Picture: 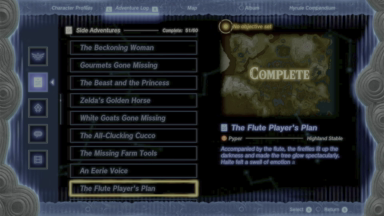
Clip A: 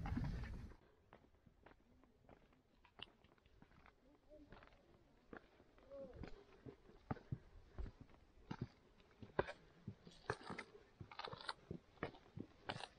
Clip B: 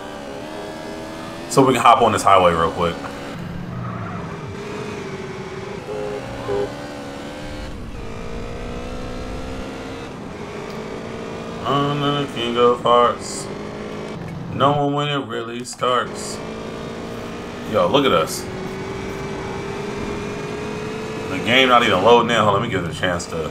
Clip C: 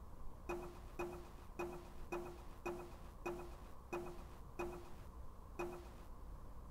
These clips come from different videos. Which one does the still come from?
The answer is C